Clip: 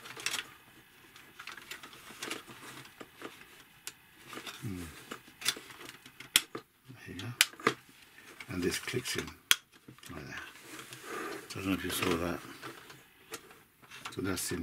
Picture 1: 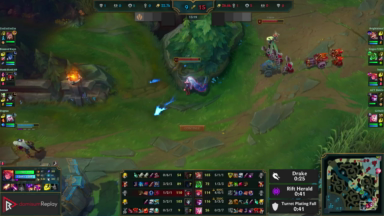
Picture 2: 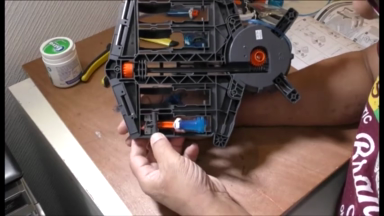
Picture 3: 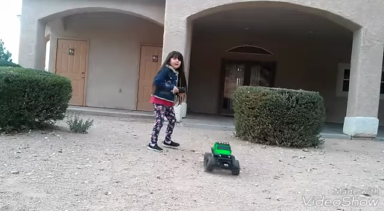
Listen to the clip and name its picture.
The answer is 2